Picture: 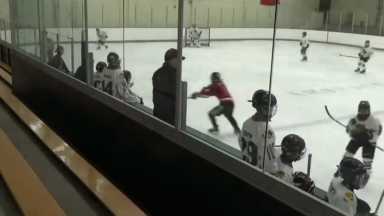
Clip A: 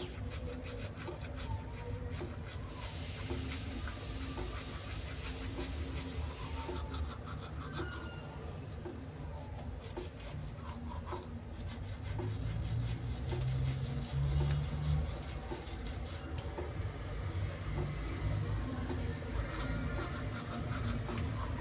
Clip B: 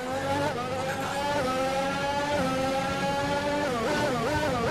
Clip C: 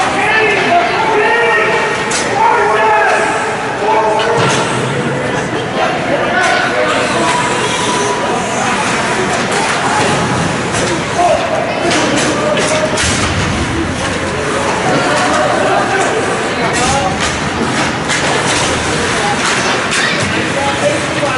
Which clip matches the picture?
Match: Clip C